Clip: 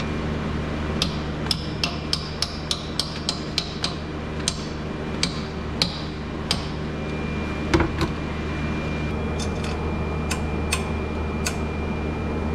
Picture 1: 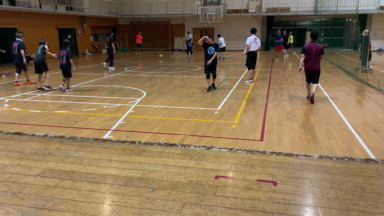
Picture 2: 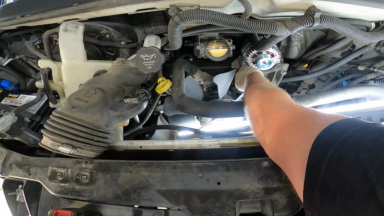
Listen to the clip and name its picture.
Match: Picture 2